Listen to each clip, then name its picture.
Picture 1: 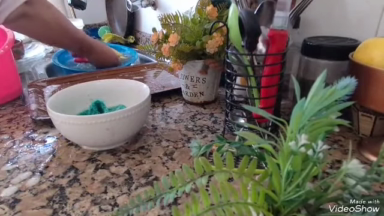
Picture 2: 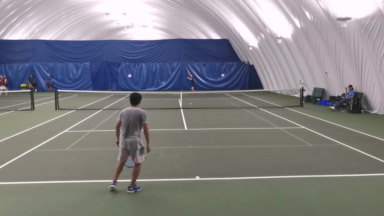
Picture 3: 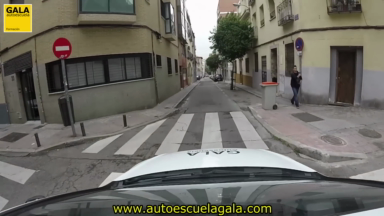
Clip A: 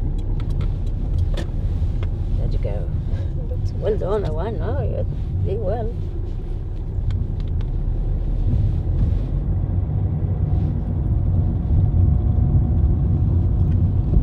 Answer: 3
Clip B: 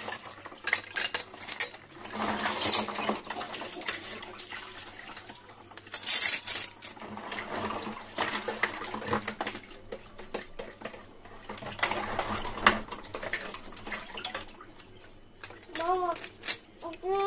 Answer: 1